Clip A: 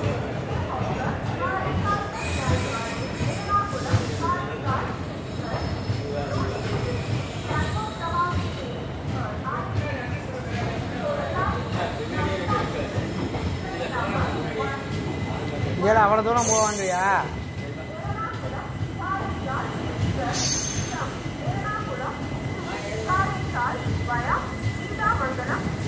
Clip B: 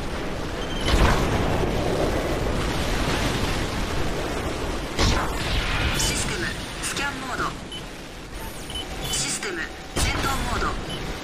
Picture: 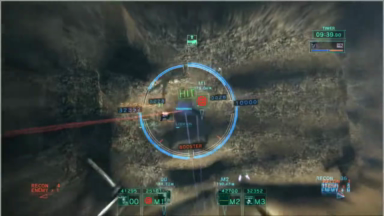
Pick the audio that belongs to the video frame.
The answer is B